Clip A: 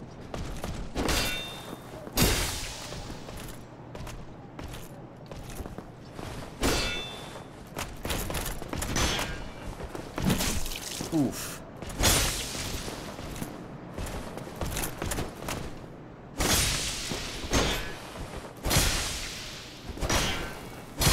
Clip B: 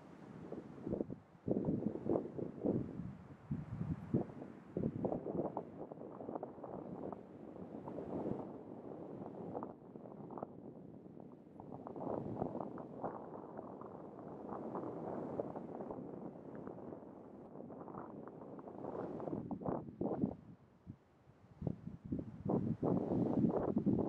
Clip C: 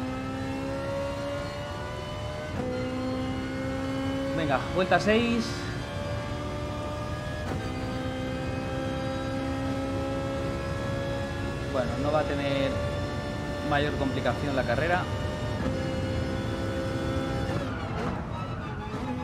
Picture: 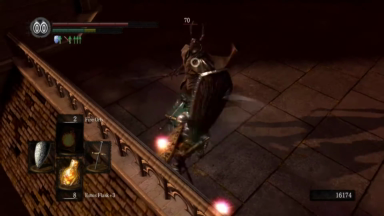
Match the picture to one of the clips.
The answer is A